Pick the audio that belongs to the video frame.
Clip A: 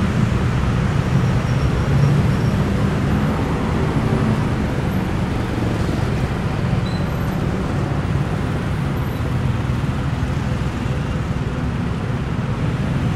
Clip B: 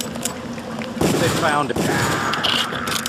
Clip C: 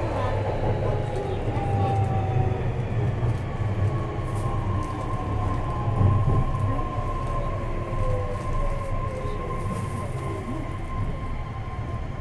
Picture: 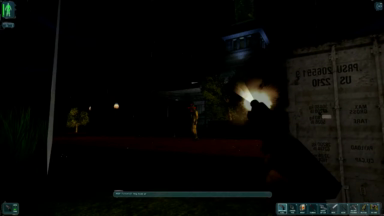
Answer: B